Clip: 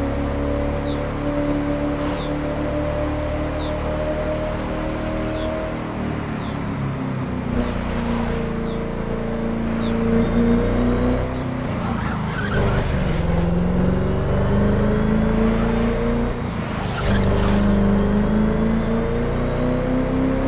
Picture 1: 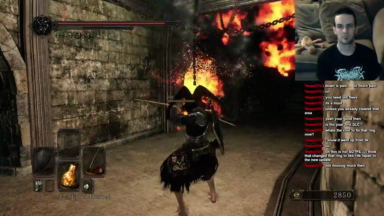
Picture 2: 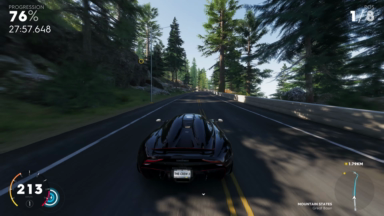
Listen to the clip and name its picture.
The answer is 2